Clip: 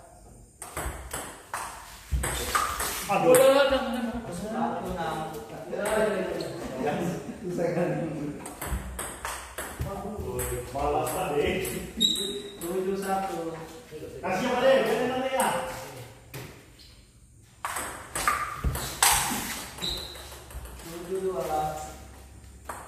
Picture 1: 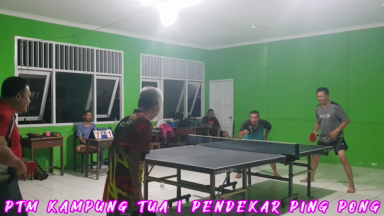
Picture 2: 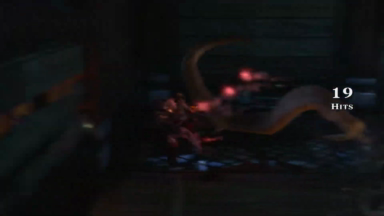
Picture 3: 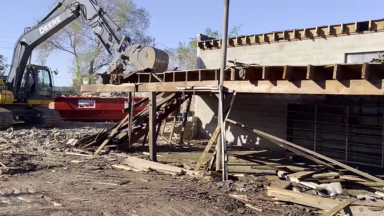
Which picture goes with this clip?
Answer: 1